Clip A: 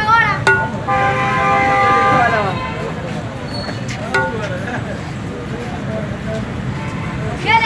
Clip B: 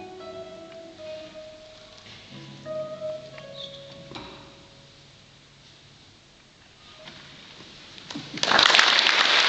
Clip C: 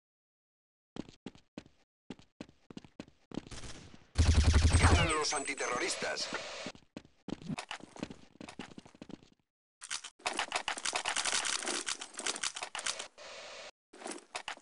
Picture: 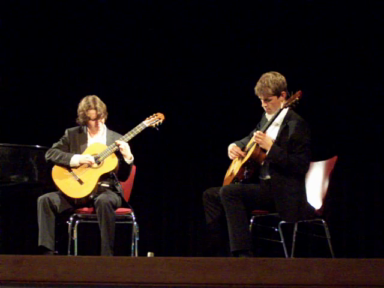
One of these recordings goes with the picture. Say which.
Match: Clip B